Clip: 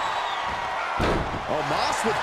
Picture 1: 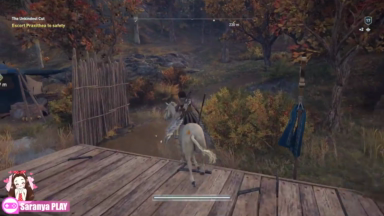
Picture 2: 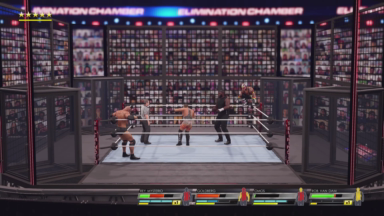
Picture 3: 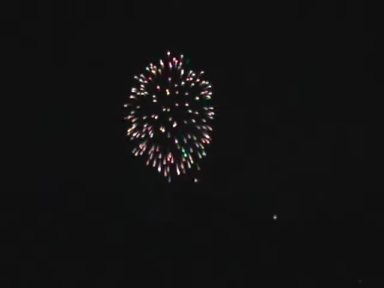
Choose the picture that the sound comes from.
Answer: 2